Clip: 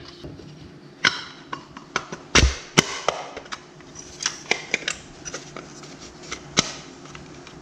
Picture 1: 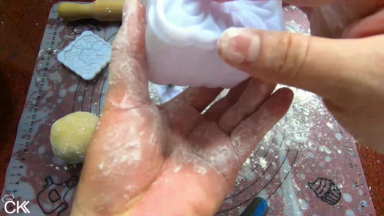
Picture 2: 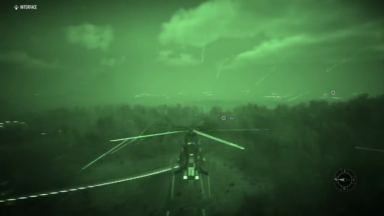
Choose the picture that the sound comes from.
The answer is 1